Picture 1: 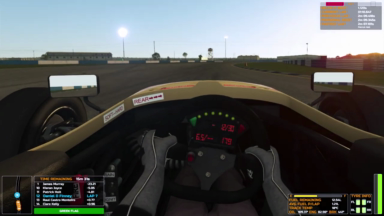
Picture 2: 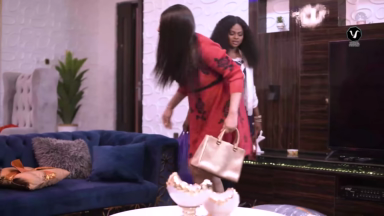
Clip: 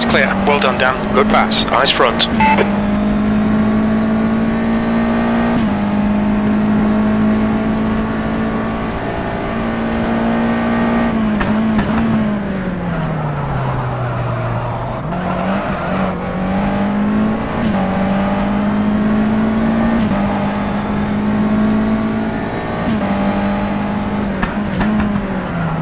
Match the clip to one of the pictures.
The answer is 1